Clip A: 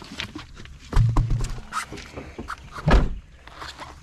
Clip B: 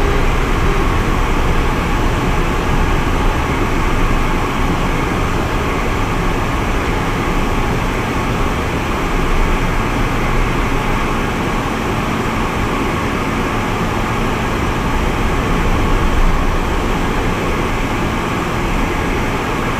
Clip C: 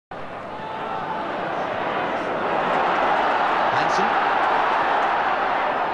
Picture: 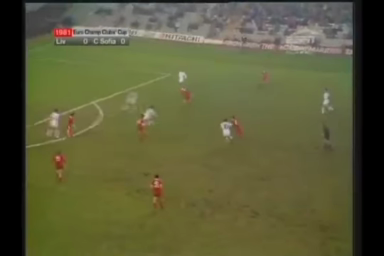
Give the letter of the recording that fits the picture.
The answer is C